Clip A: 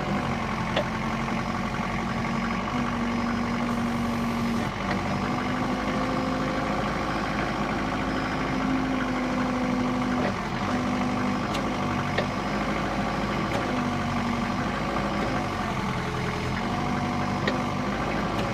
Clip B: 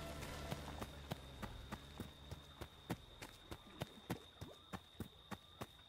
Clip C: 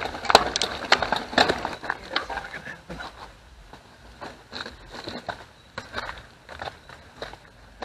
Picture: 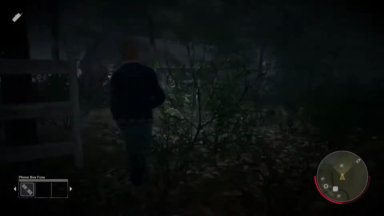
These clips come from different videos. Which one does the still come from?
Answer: B